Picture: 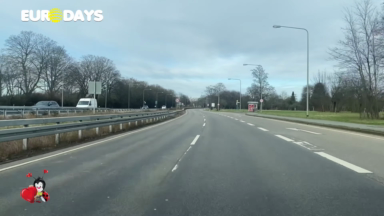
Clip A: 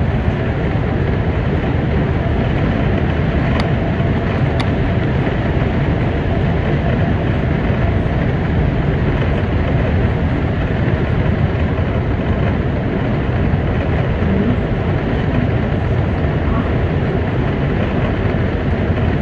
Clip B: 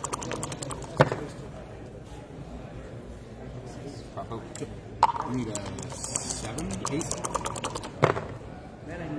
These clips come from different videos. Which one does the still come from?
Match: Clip A